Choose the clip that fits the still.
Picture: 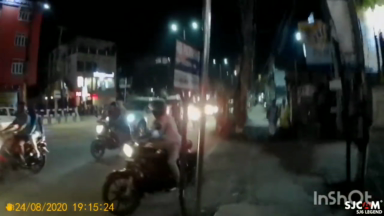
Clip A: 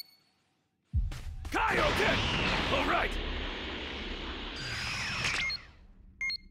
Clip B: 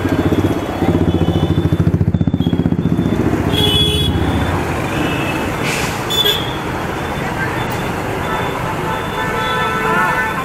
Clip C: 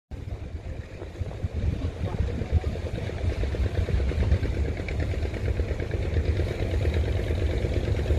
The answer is B